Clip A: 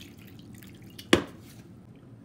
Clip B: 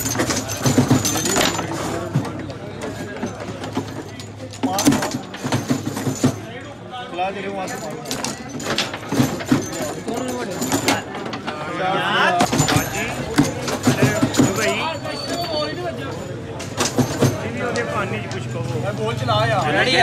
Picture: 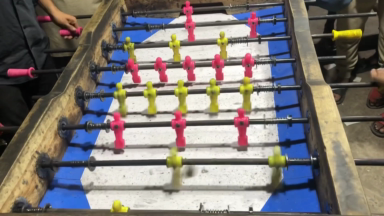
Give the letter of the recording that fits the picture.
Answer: B